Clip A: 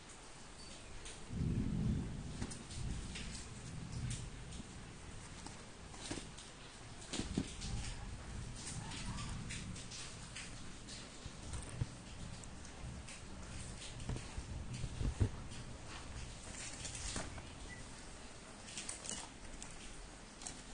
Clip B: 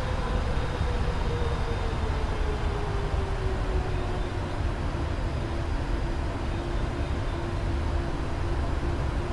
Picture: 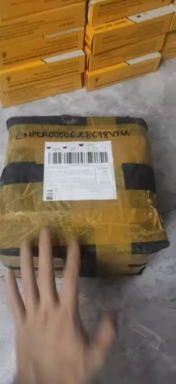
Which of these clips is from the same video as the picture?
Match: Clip A